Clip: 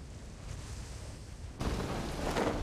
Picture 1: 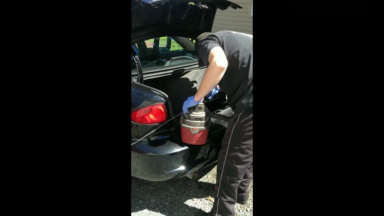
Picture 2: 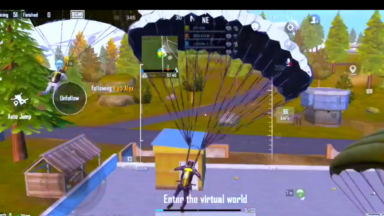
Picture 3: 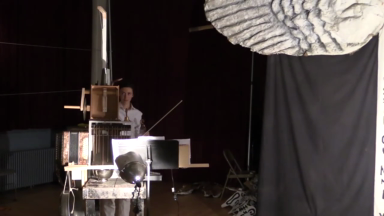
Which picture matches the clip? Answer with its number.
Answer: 2